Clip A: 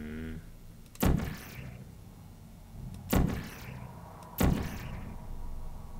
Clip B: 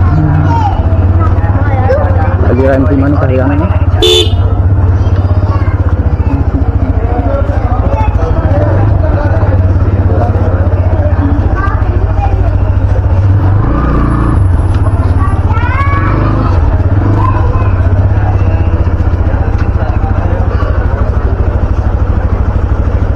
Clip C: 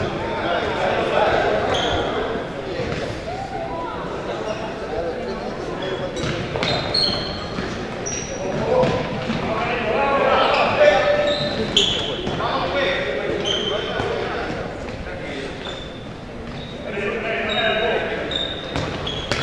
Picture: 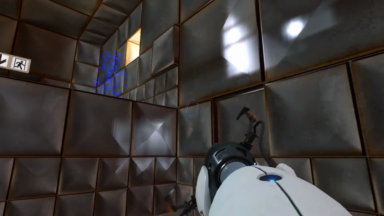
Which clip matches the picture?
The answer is A